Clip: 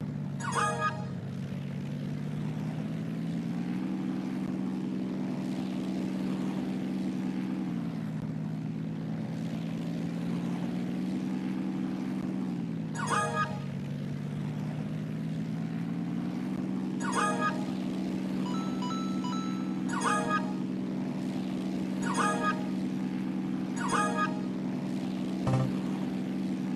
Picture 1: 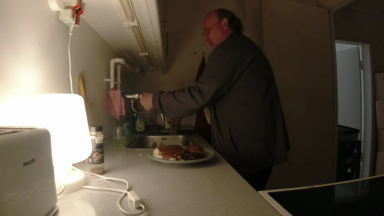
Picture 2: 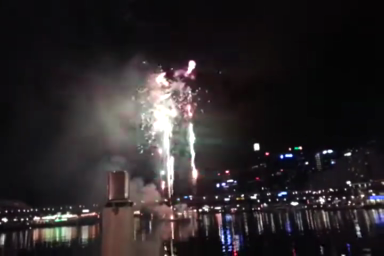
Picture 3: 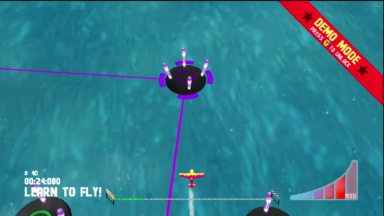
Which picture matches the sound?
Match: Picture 3